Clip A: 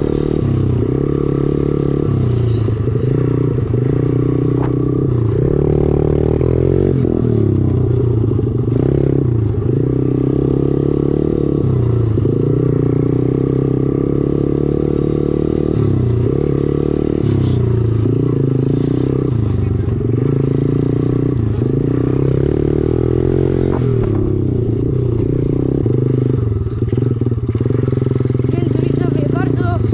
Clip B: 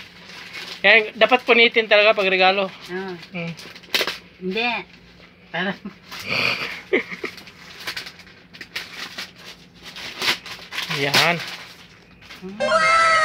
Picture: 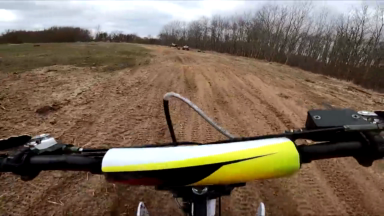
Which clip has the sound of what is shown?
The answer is A